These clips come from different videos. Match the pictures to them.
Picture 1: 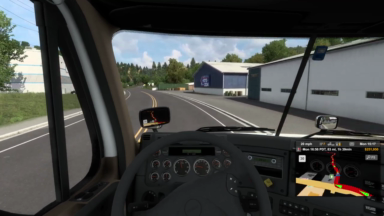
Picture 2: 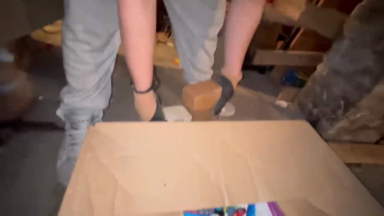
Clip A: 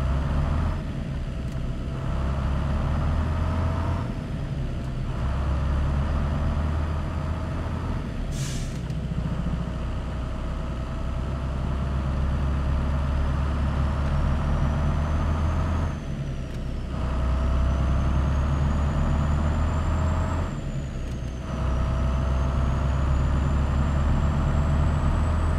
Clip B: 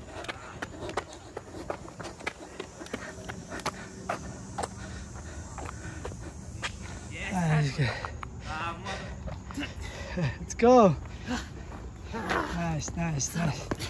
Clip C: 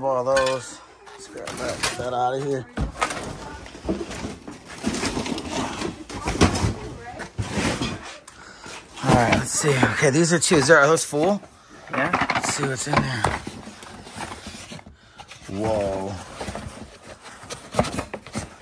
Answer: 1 A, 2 C